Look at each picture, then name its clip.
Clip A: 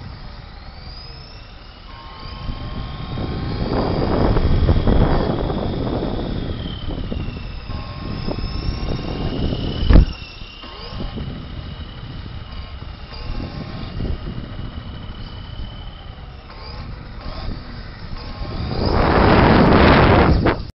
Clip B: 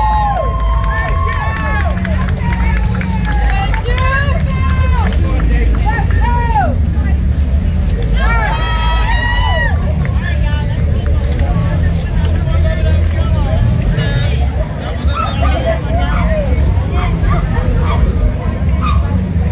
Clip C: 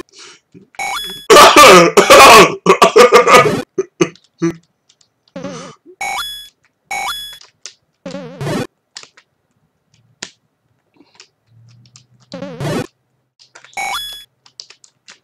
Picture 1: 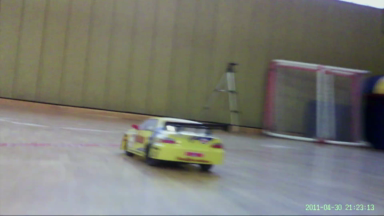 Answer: A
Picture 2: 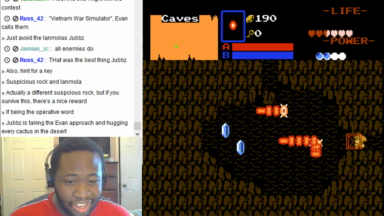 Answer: C